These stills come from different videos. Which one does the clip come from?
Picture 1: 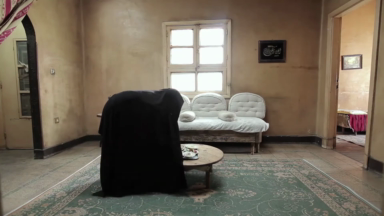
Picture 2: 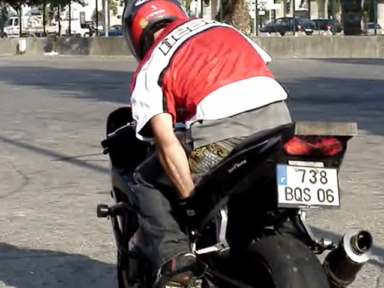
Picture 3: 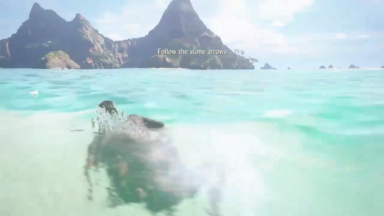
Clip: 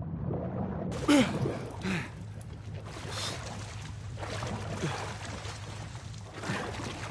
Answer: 3